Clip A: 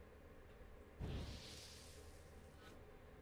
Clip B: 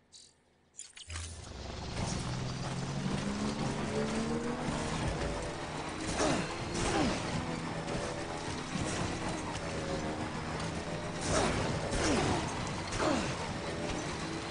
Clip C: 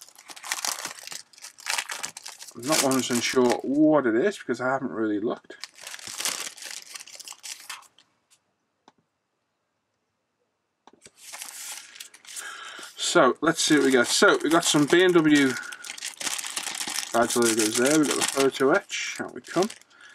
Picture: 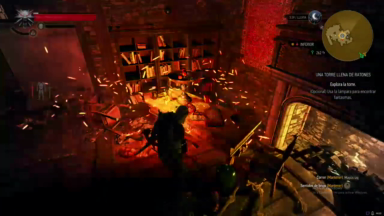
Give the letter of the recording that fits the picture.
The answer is A